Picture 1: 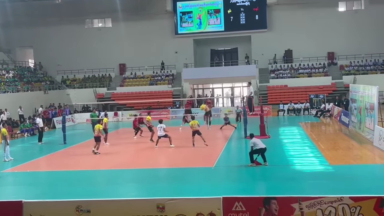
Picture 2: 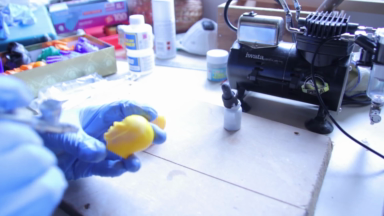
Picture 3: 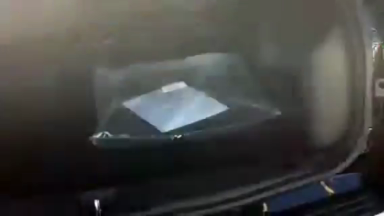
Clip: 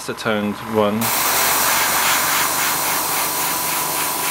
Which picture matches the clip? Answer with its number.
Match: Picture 2